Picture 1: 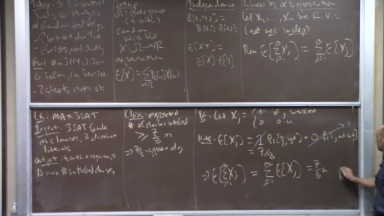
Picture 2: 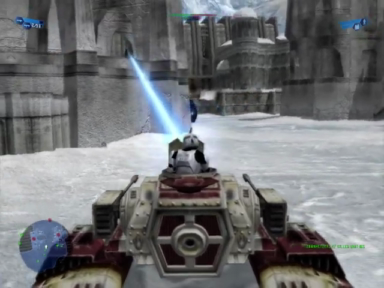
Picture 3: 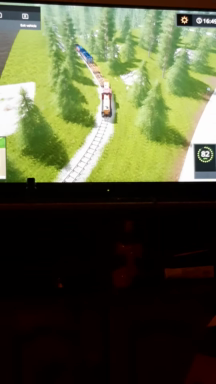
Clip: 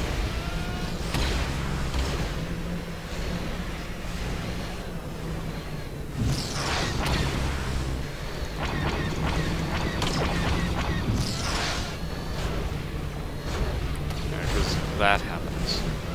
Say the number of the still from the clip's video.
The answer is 2